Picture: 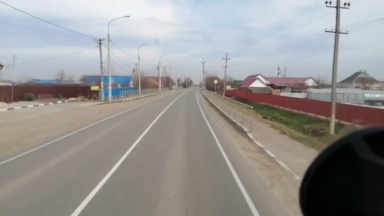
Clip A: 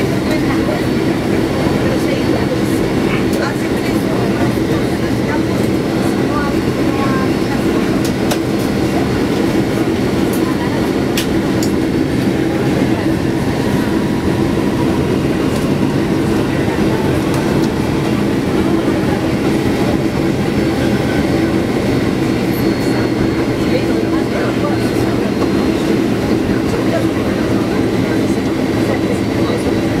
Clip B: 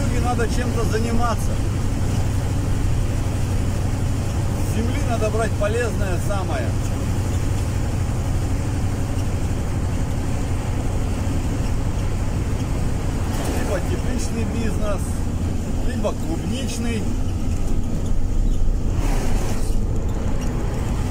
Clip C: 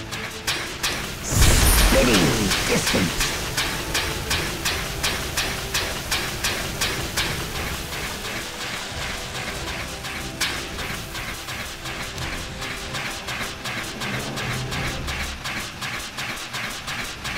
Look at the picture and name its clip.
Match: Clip B